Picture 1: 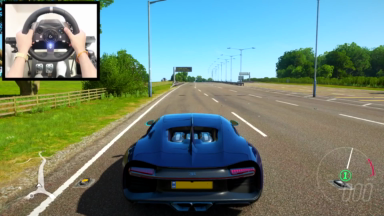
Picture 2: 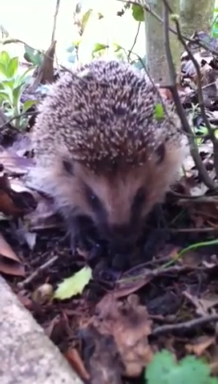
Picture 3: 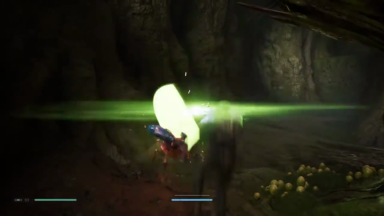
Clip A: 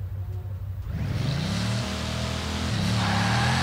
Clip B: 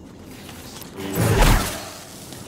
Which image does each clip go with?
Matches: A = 1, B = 3